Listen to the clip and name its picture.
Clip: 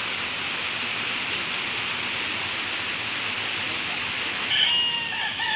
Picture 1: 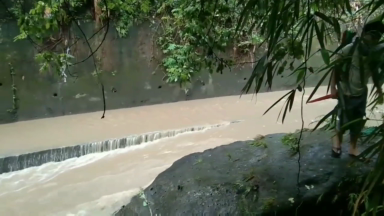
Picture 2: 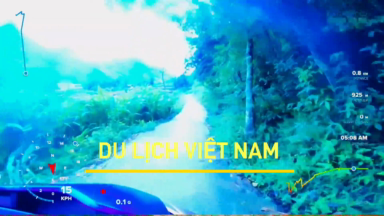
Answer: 1